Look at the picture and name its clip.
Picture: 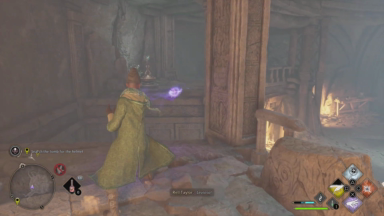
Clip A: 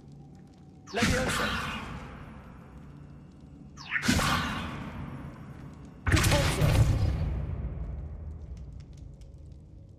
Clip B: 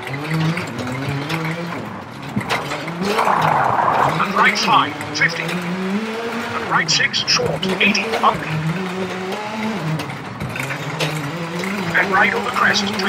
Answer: A